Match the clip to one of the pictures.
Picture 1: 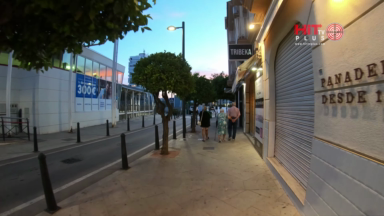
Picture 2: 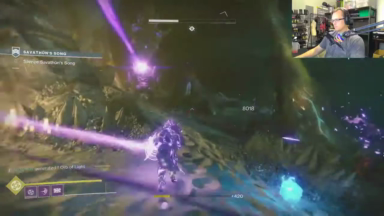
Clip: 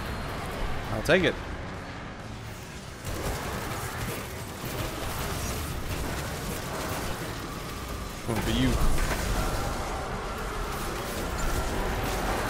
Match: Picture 2